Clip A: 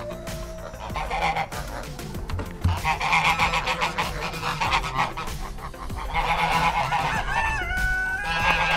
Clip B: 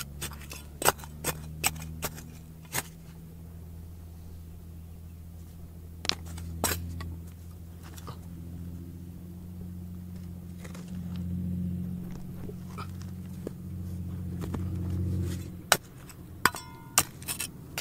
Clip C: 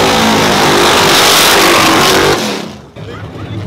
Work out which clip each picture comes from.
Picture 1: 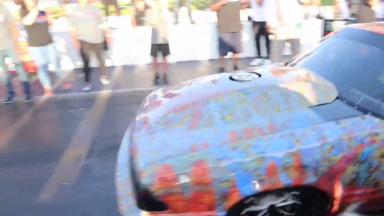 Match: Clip C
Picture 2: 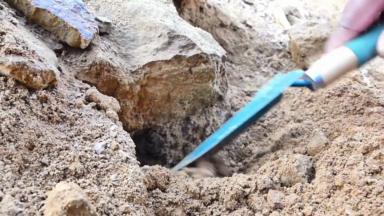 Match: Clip B